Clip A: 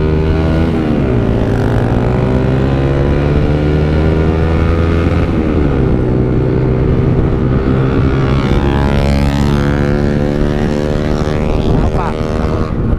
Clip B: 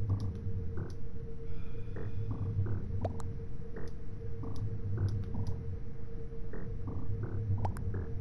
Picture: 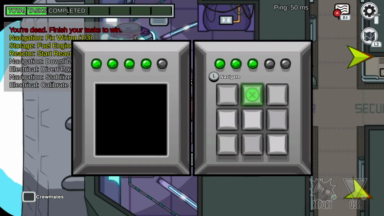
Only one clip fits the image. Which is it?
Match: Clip B